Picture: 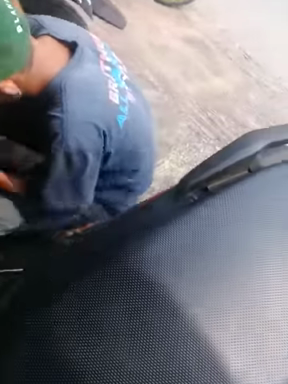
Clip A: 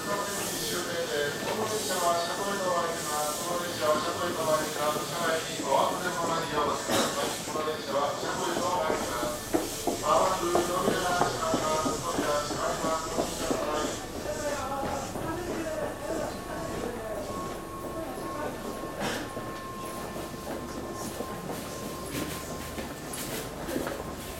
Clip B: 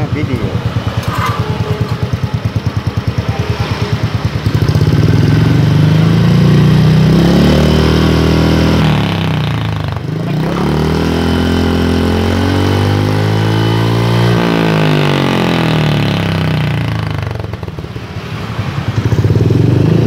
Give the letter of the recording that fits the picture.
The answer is B